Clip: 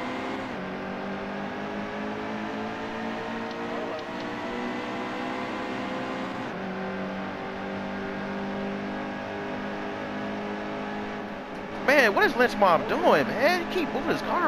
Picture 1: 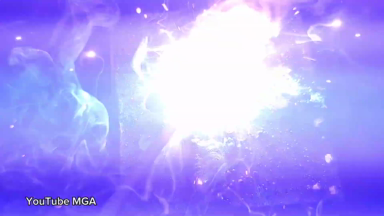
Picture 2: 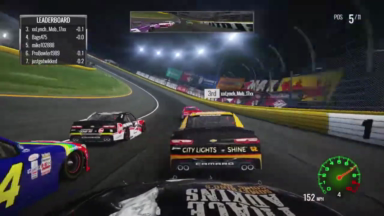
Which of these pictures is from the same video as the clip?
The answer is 2